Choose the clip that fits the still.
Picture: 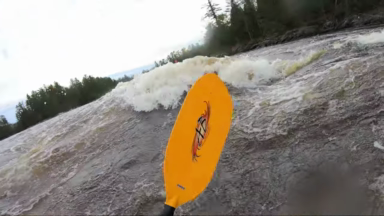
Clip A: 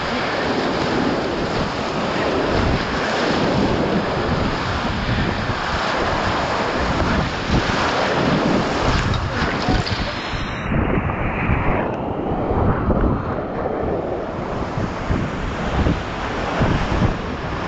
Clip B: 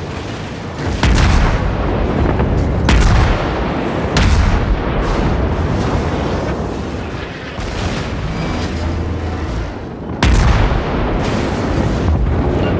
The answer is A